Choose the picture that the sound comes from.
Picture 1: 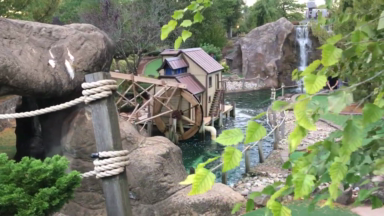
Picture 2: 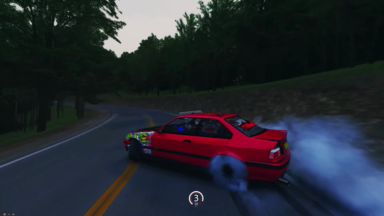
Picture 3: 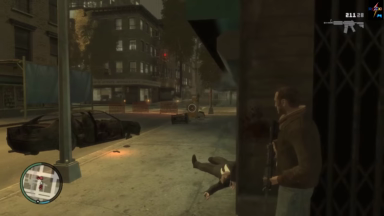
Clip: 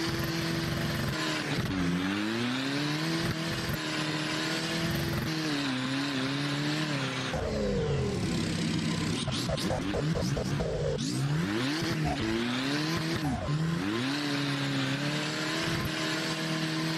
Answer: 2